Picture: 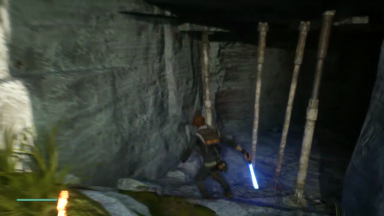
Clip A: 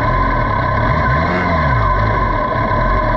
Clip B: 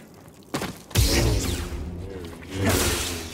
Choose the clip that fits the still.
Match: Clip B